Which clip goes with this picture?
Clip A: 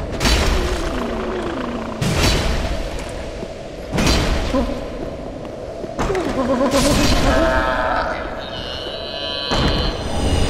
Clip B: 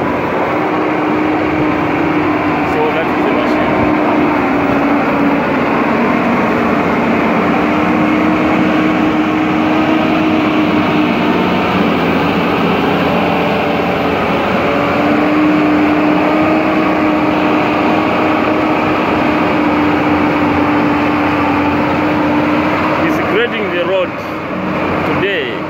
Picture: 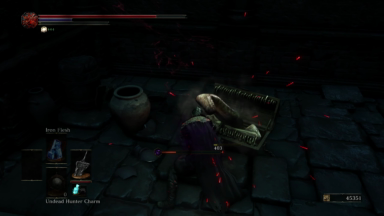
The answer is A